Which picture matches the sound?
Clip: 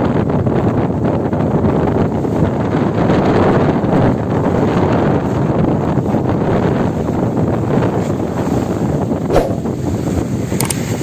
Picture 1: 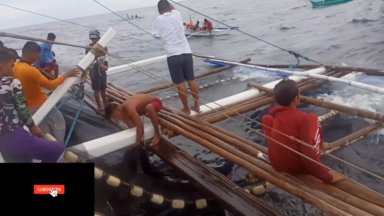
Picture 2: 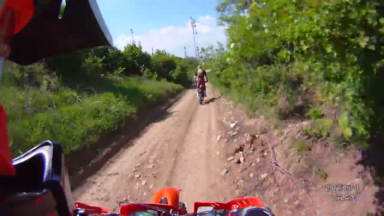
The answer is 1